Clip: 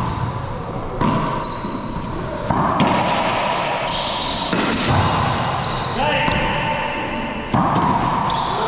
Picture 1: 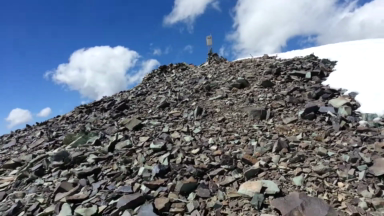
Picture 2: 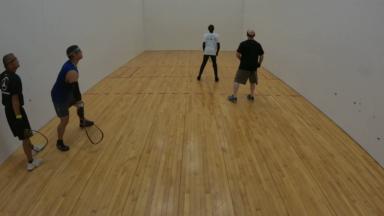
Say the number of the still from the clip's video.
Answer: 2